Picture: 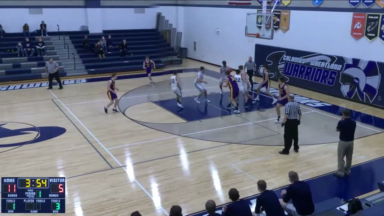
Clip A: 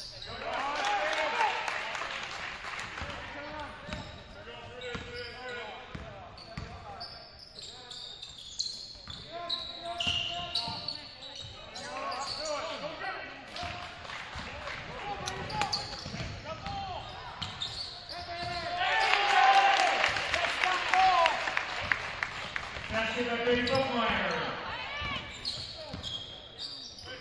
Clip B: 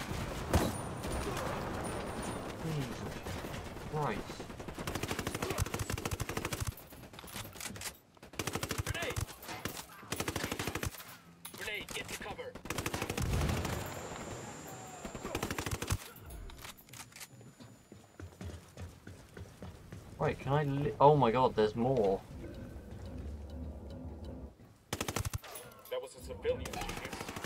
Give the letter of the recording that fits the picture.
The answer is A